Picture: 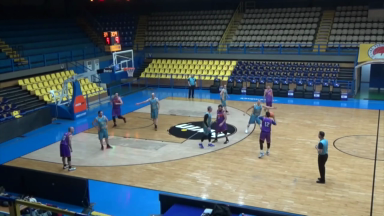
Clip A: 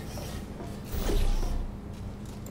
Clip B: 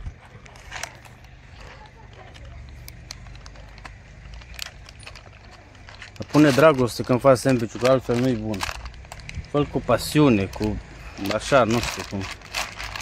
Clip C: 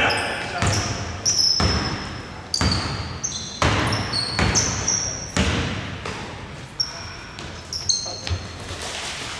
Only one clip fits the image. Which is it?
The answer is C